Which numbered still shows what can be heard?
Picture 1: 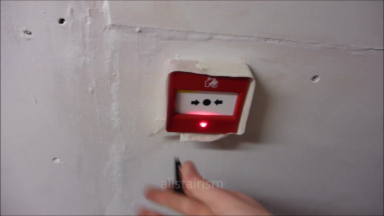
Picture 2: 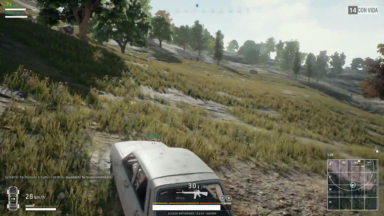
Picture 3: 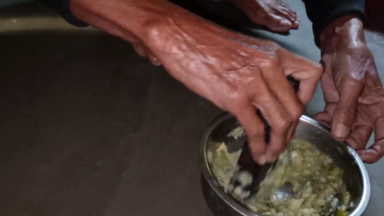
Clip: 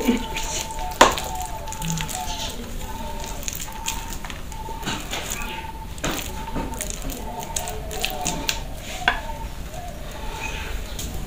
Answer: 3